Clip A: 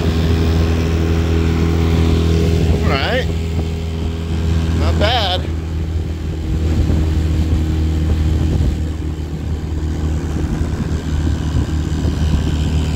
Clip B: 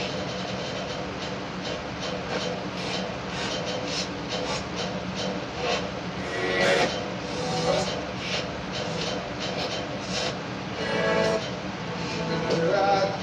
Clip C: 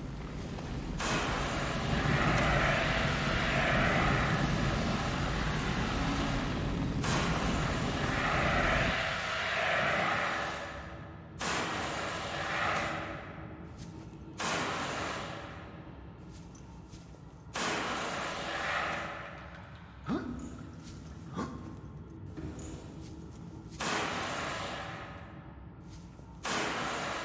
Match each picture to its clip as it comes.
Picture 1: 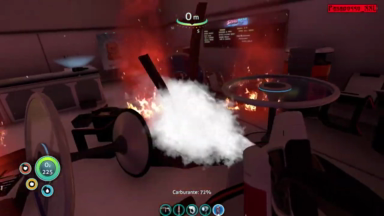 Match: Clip C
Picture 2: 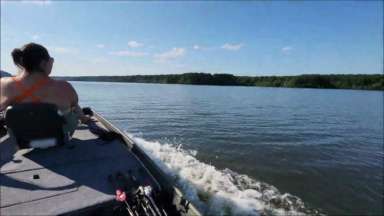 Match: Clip A